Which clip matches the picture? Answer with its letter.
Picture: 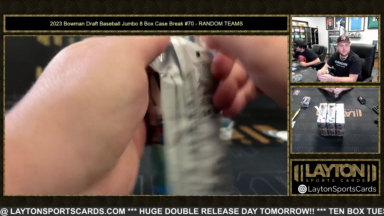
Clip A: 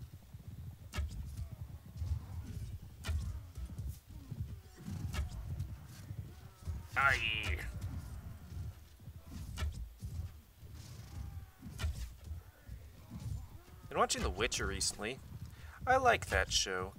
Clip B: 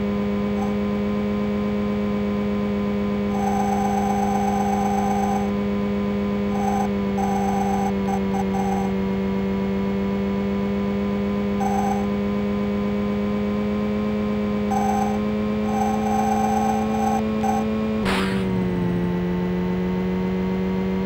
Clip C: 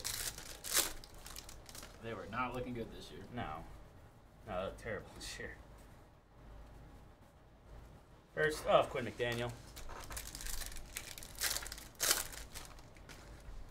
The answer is C